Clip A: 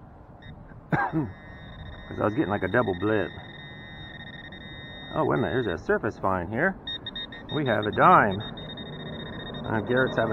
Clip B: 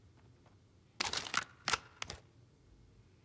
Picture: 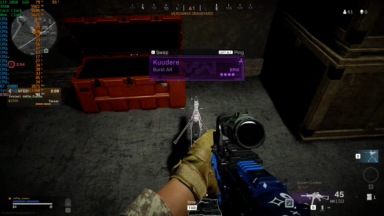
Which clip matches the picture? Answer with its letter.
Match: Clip B